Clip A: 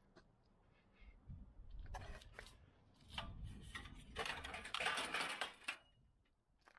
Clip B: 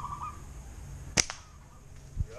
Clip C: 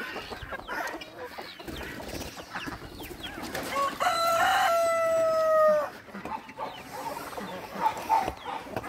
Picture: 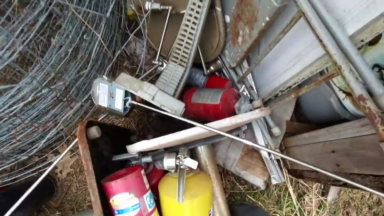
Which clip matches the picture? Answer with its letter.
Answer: A